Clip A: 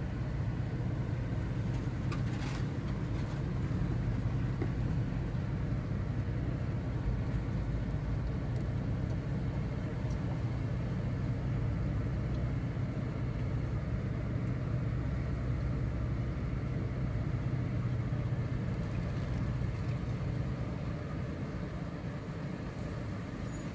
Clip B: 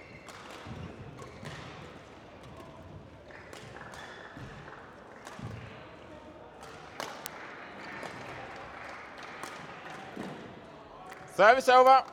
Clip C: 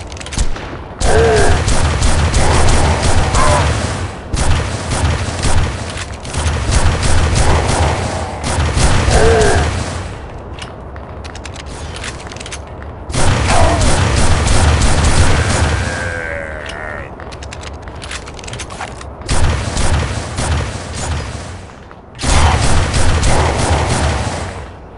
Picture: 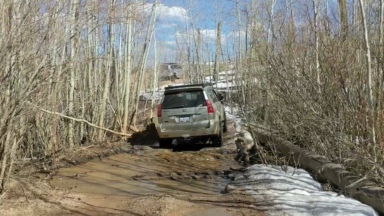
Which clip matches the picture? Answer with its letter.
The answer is A